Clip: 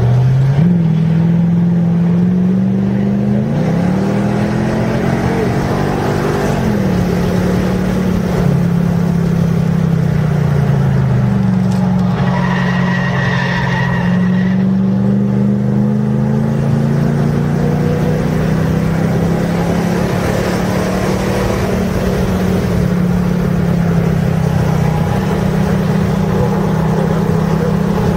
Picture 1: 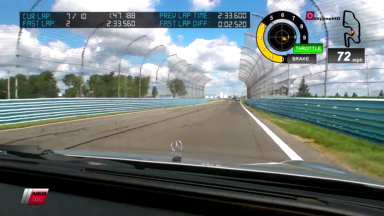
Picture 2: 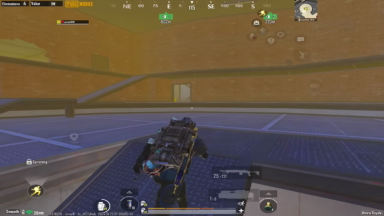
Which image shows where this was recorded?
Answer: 1